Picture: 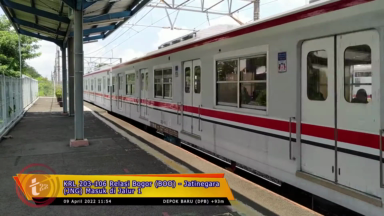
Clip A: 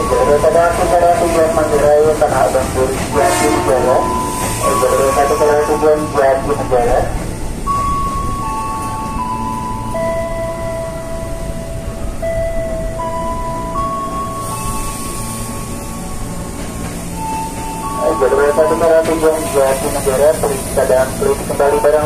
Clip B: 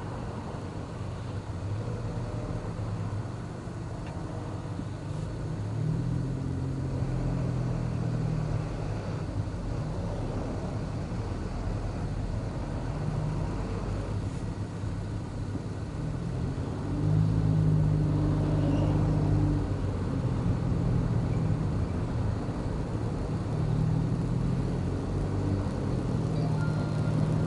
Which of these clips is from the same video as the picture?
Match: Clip A